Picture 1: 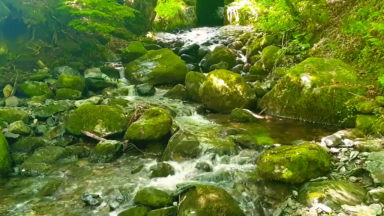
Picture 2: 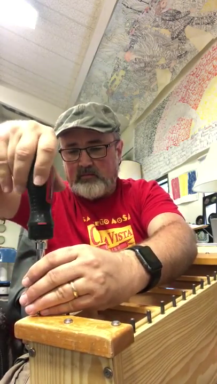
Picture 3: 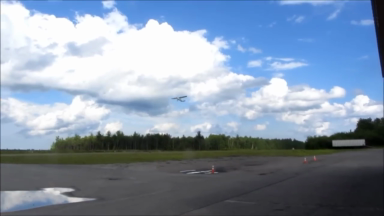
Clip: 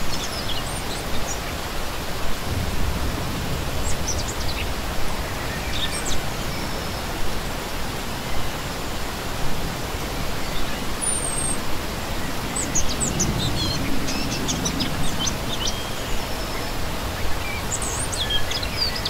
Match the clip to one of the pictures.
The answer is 1